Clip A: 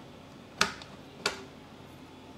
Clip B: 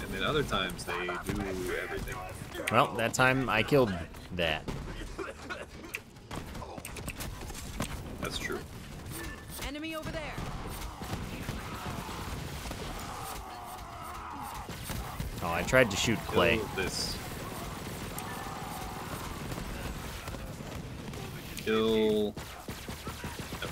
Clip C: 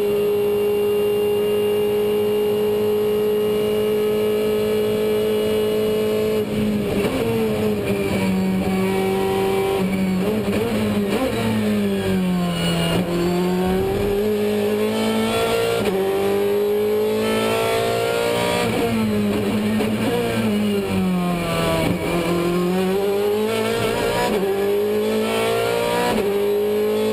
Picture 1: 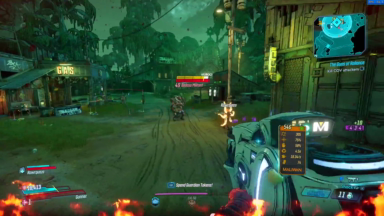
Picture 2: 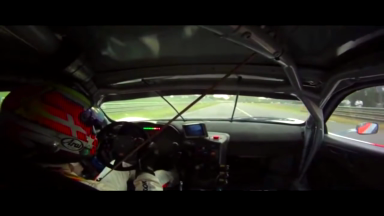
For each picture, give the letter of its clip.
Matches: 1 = B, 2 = C